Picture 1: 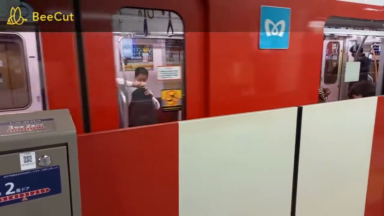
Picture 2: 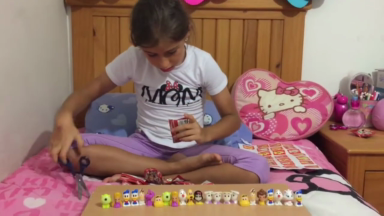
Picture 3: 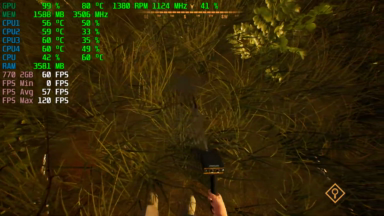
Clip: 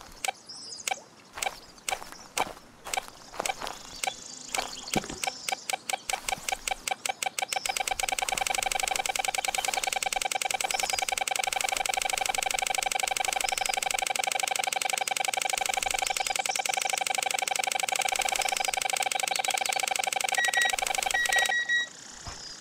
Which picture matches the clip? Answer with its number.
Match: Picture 3